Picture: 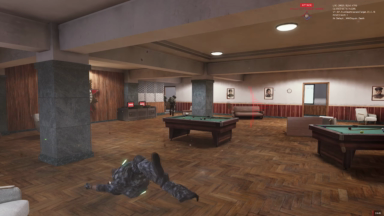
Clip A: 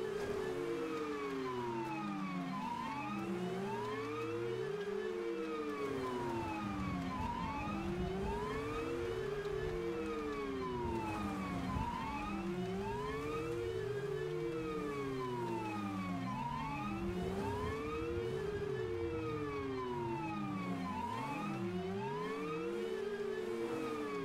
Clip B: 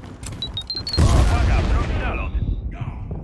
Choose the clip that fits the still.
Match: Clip B